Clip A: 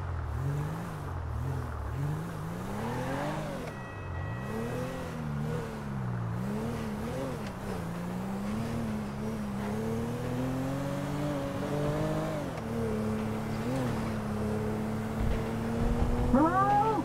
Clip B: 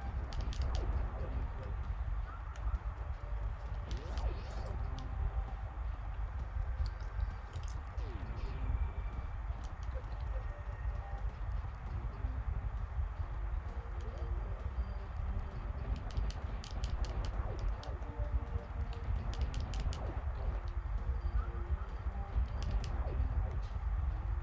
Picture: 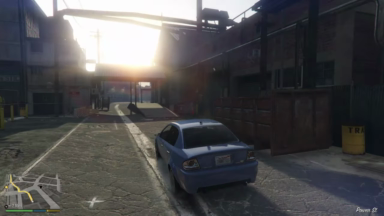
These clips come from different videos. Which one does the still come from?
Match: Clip A